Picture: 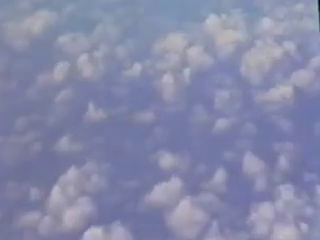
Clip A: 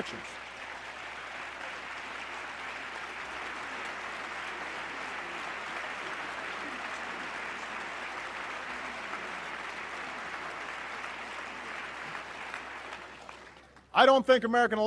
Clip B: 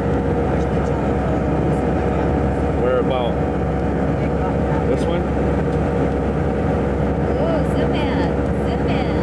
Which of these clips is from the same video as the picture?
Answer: B